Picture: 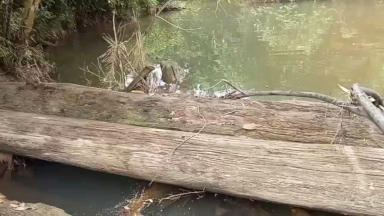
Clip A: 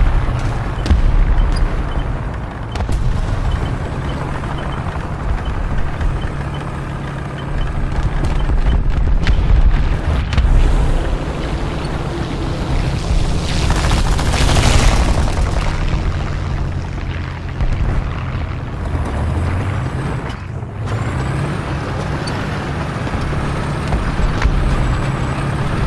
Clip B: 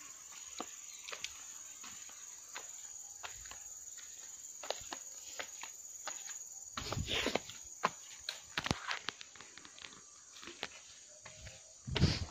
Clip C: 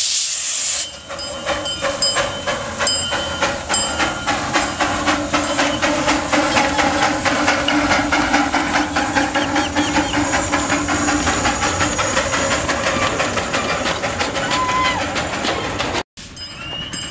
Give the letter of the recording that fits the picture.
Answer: B